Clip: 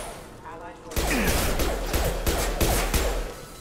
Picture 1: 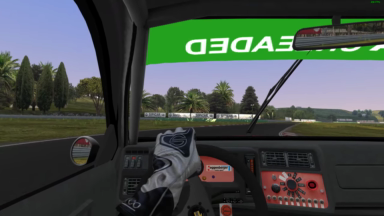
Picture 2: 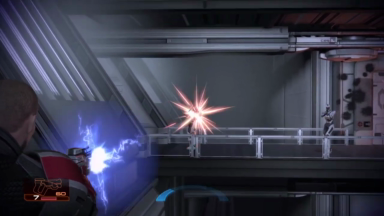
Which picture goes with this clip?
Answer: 2